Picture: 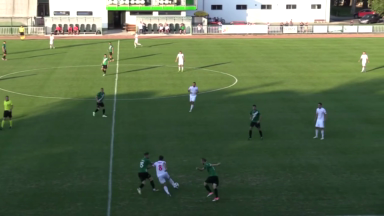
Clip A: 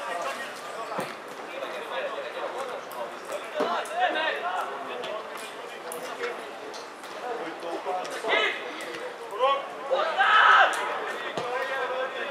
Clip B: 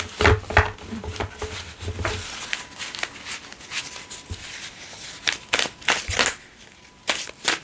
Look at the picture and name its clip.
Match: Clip A